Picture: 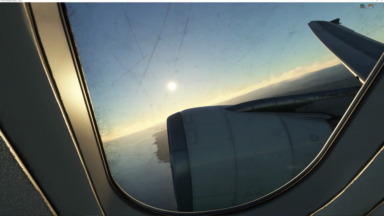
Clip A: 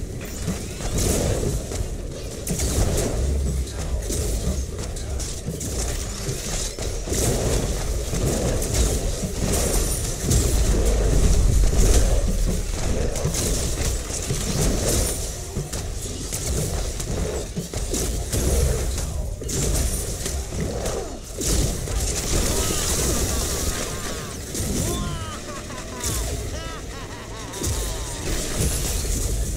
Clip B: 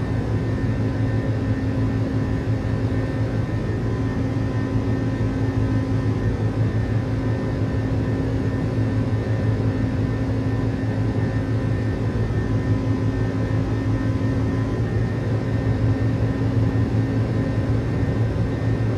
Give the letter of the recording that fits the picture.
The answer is B